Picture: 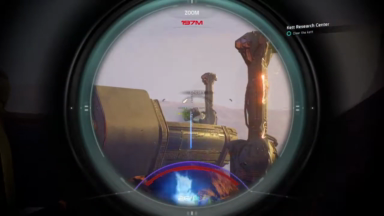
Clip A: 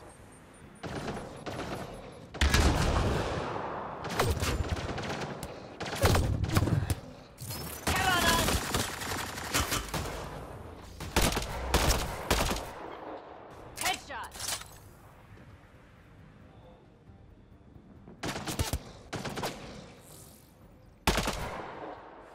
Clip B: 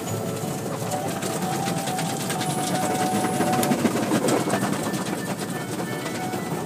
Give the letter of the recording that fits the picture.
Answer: A